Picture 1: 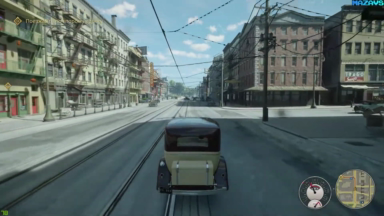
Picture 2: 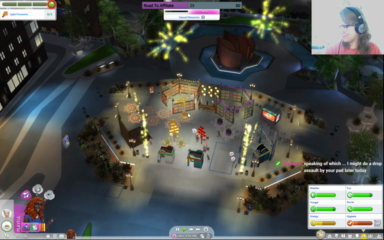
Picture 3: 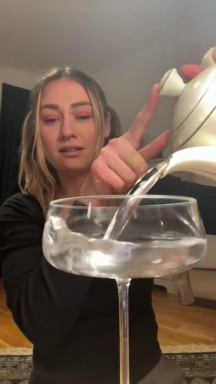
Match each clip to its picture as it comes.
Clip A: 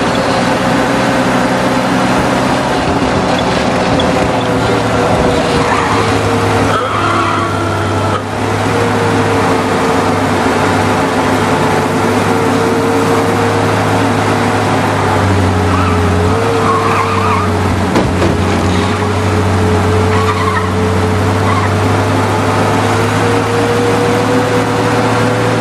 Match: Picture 1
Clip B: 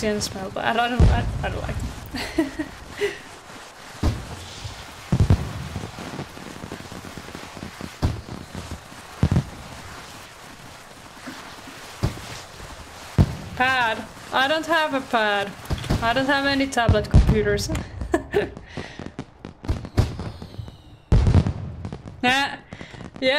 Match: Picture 2